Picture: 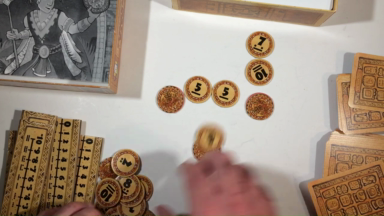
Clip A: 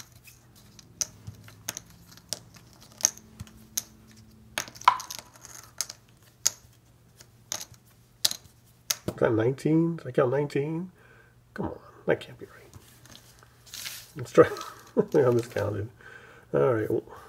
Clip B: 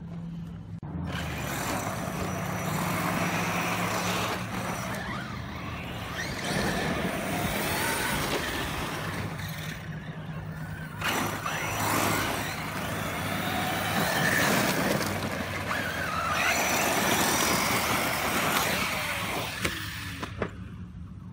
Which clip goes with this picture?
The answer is A